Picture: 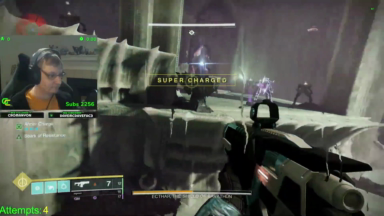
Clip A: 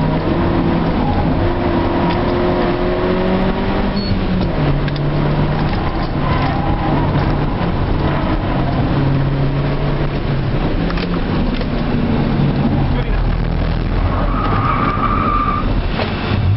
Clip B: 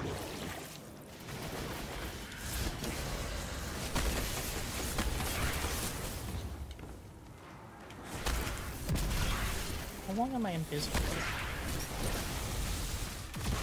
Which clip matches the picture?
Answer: B